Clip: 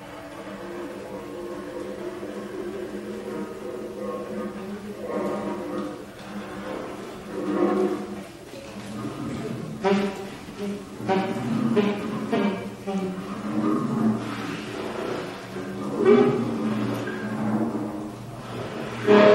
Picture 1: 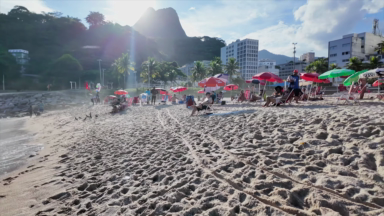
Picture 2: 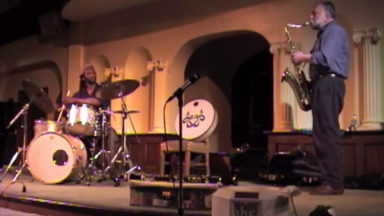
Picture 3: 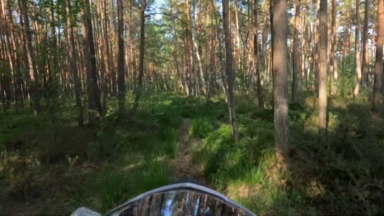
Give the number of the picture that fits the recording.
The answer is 2